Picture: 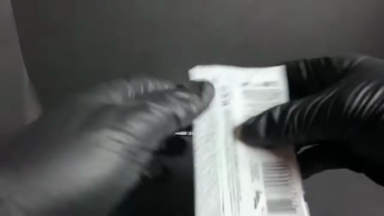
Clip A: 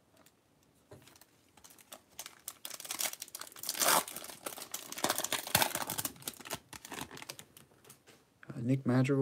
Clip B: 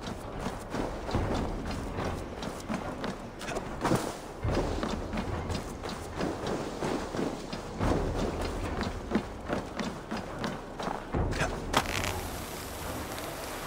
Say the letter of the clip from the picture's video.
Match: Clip A